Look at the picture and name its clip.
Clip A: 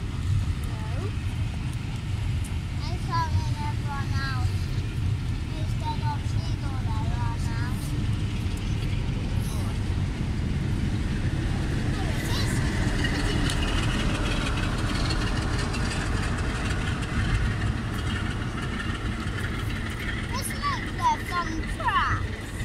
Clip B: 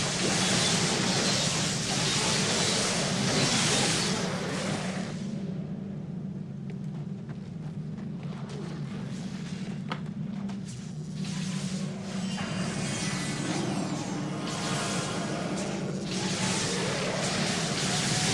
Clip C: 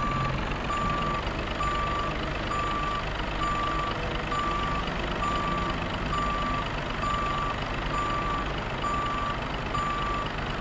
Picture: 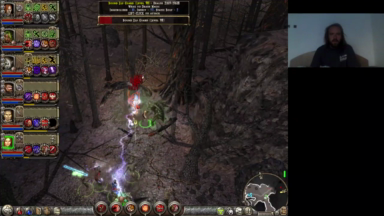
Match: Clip B